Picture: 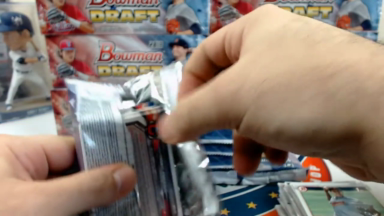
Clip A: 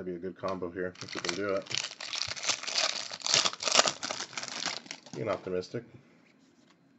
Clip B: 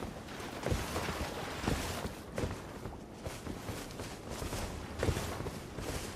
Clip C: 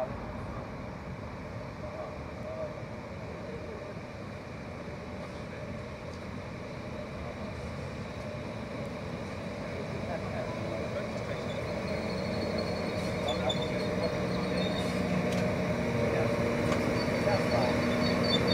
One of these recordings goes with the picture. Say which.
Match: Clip A